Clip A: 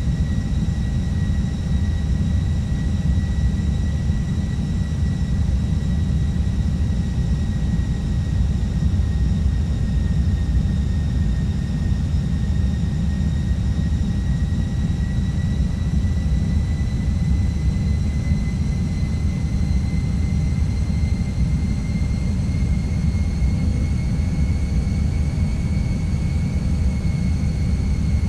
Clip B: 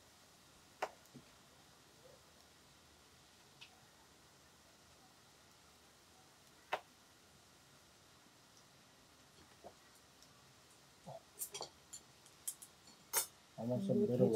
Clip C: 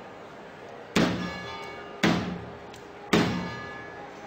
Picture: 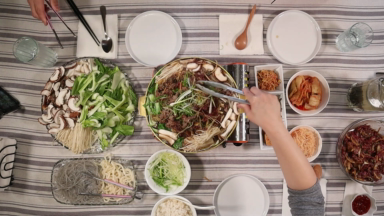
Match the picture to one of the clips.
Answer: B